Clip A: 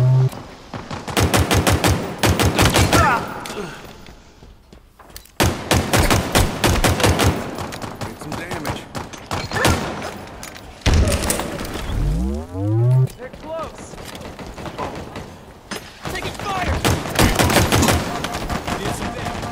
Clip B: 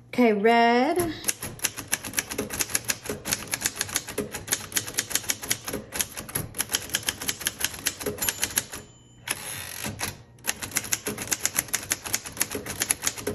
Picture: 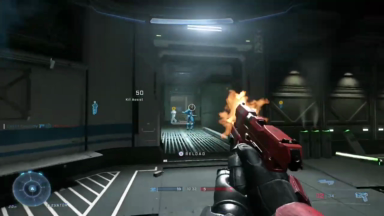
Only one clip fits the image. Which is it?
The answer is A